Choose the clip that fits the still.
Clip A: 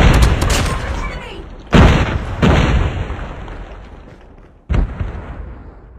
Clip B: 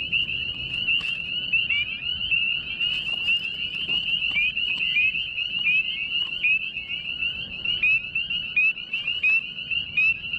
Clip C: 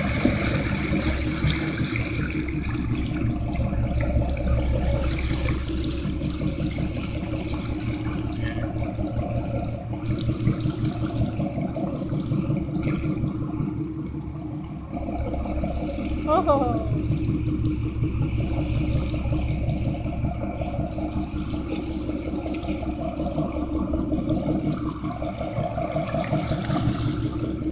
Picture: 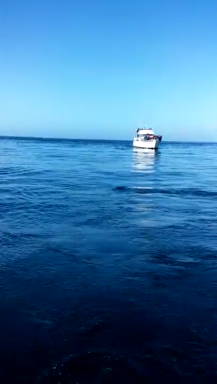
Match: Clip C